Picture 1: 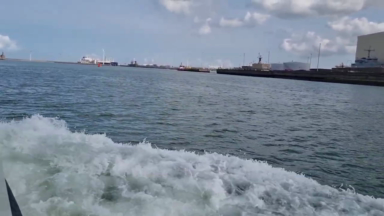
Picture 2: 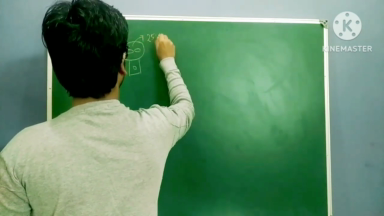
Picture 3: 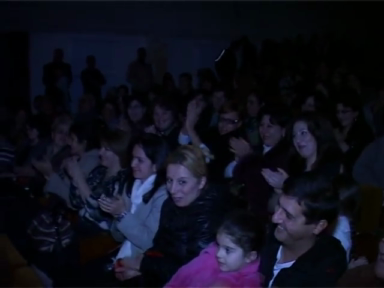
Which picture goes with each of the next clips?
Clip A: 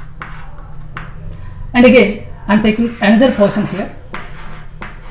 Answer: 2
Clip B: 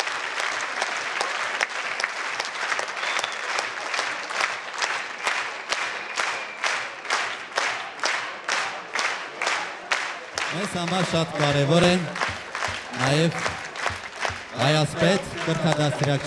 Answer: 3